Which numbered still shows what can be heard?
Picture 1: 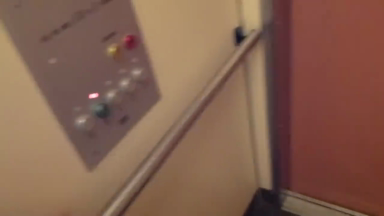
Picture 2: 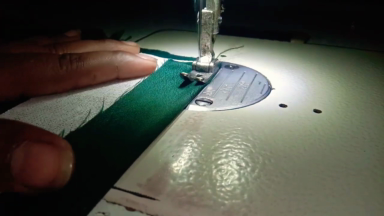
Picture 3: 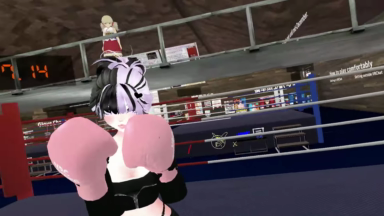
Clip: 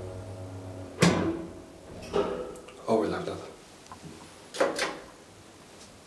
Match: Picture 1